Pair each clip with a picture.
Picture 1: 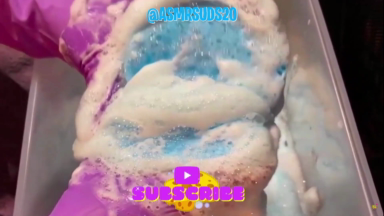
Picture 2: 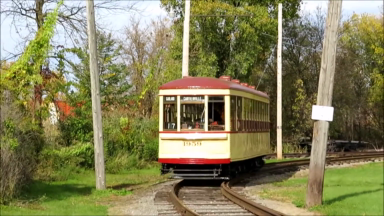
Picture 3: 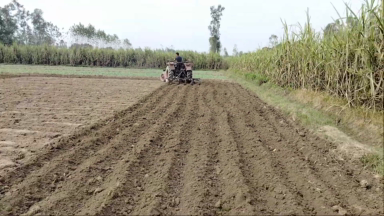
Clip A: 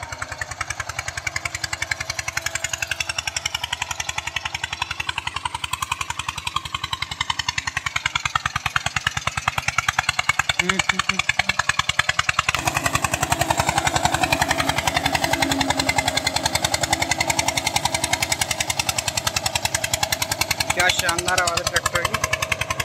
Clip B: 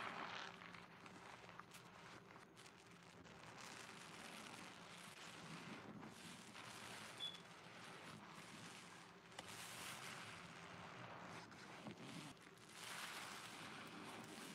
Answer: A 3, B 1